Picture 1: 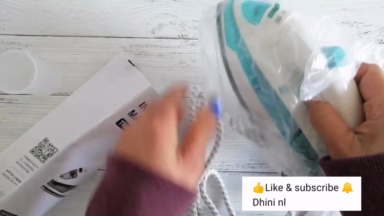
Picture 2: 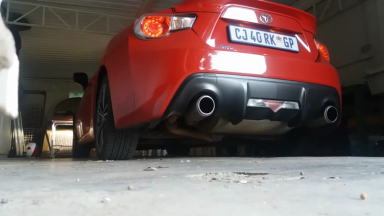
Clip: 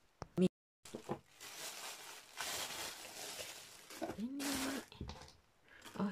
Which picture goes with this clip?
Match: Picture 1